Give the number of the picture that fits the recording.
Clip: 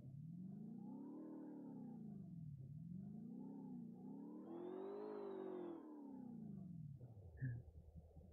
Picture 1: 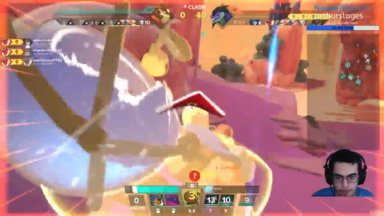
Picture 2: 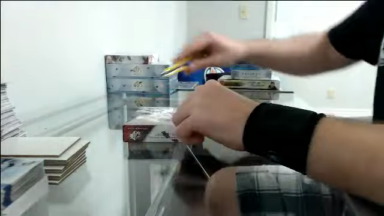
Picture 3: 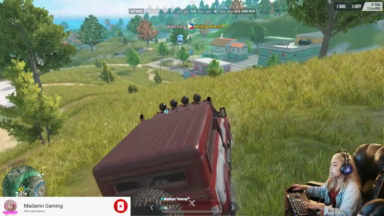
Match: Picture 3